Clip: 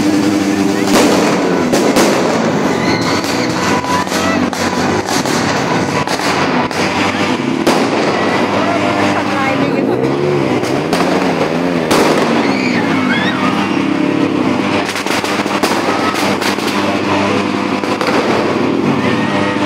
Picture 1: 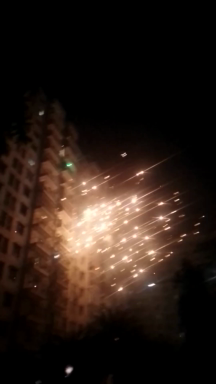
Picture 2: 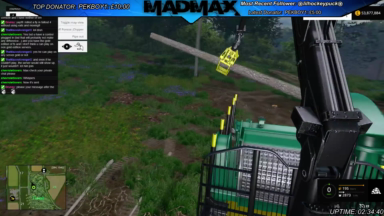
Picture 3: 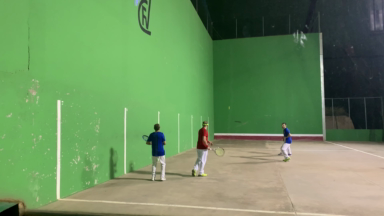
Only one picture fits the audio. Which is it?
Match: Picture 1